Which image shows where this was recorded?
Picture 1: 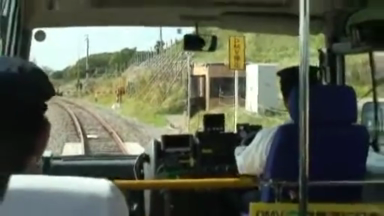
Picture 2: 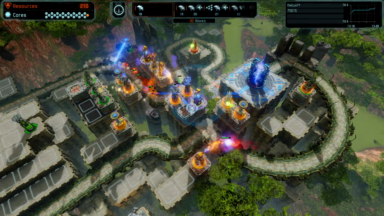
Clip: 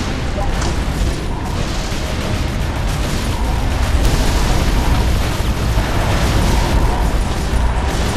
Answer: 2